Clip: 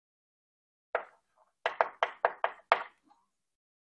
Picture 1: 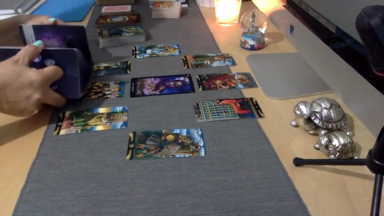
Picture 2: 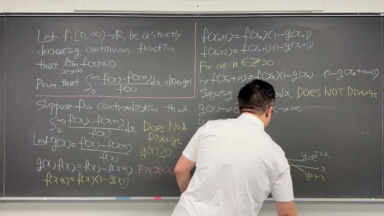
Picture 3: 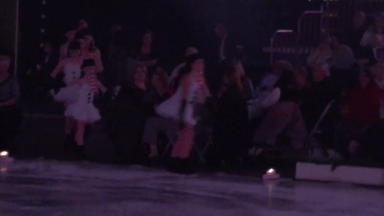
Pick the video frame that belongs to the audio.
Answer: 2